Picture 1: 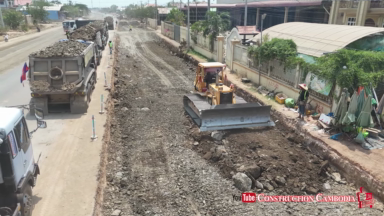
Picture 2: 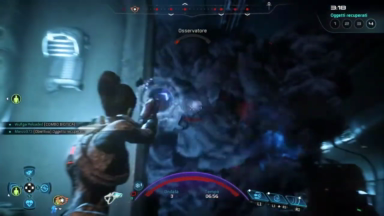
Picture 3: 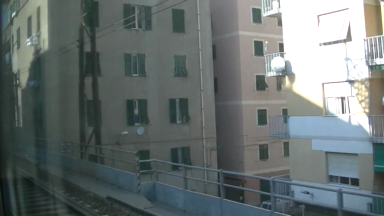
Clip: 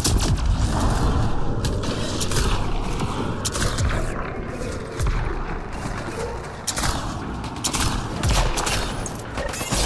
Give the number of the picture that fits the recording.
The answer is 2